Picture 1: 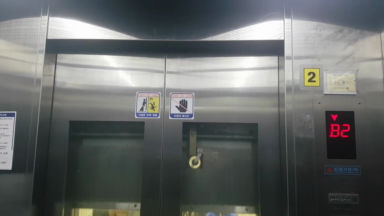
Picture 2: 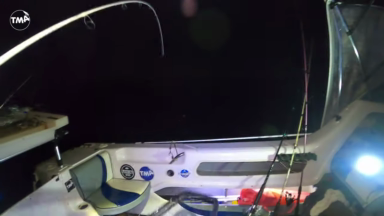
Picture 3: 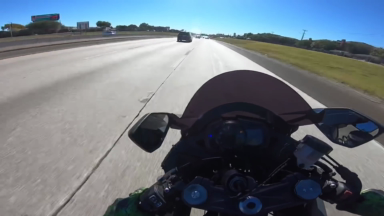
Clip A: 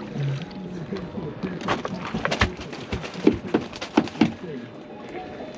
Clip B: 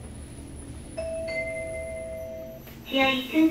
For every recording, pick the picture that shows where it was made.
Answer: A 2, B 1